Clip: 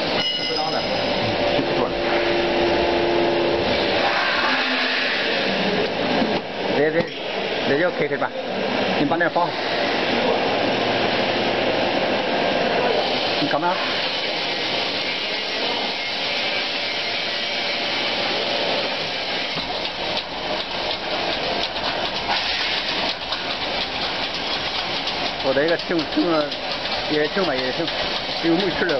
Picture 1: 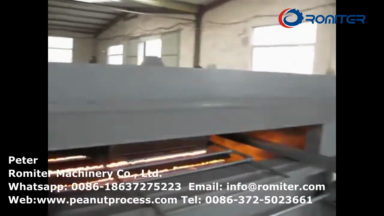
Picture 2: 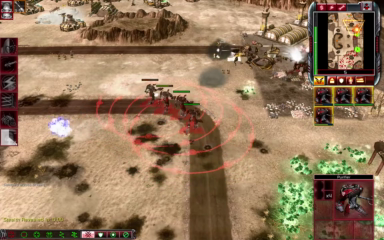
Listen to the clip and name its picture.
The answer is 1